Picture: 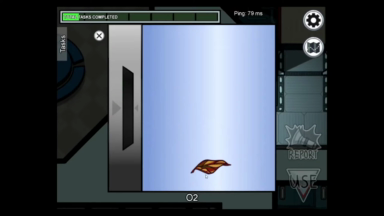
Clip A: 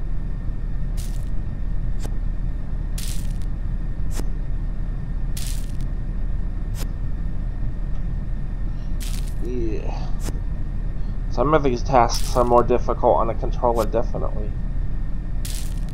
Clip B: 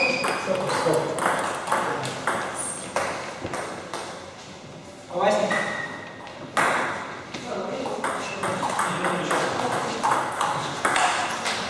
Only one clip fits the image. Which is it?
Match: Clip A